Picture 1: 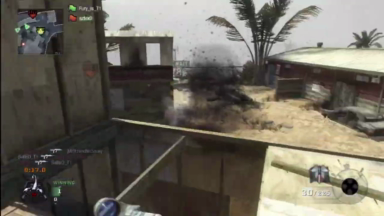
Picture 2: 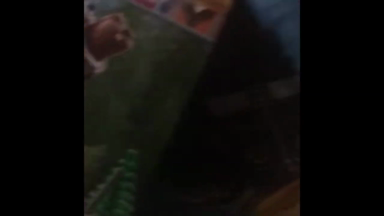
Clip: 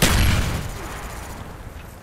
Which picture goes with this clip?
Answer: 1